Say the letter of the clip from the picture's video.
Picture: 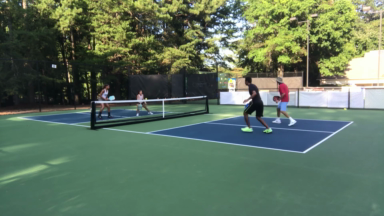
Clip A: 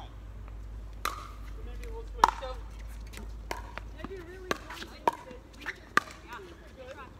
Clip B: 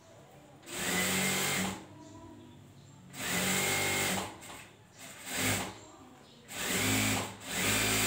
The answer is A